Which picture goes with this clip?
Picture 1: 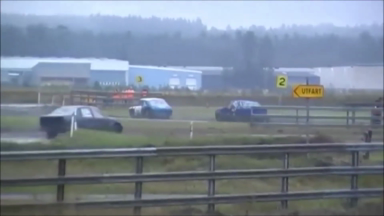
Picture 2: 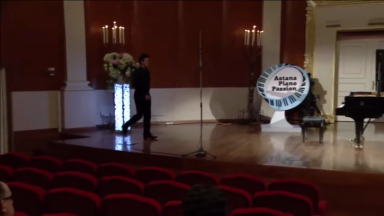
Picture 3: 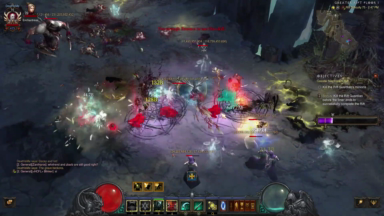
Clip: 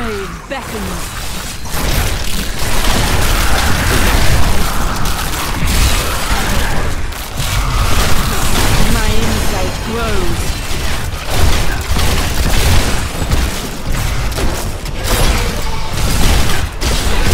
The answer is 3